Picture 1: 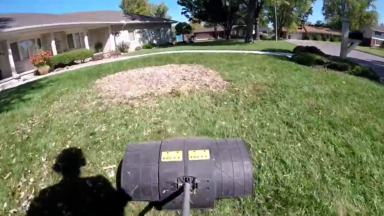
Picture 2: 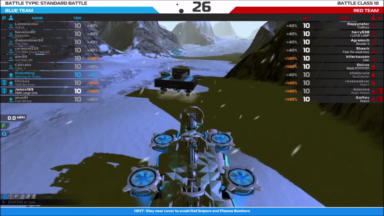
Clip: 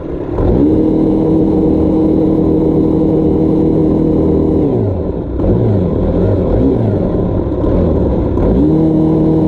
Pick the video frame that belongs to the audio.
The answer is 1